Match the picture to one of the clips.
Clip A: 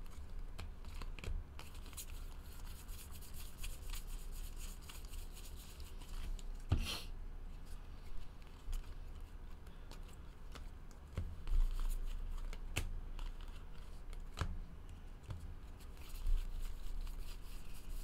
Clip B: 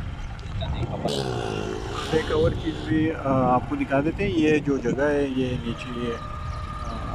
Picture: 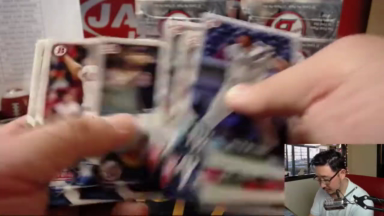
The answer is A